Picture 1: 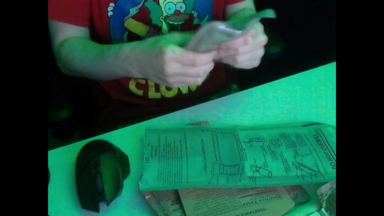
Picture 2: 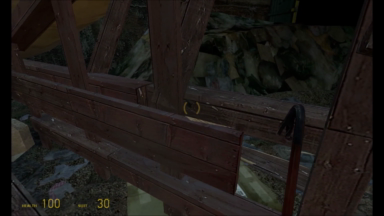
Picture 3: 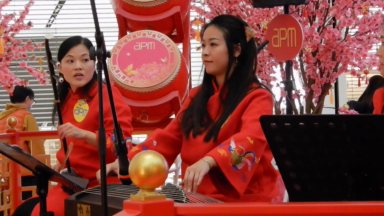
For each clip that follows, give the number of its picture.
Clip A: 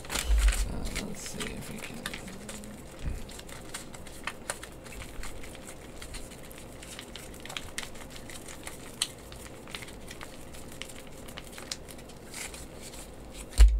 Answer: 1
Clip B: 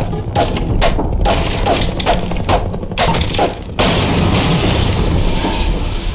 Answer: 2